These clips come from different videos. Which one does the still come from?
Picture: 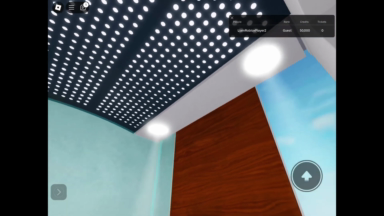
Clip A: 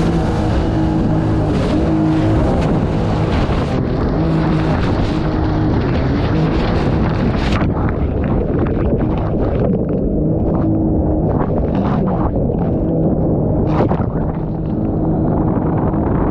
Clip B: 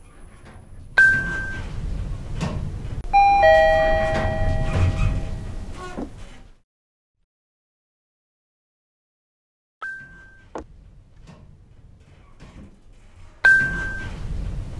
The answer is B